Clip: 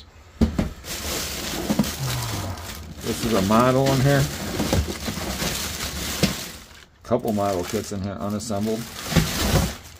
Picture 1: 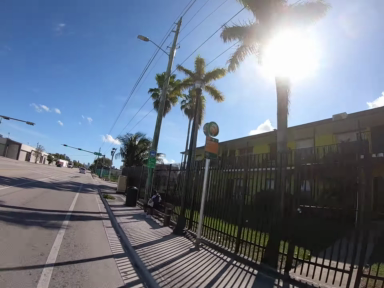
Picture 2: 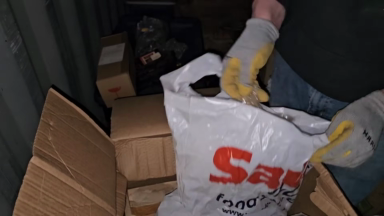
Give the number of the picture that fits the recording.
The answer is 2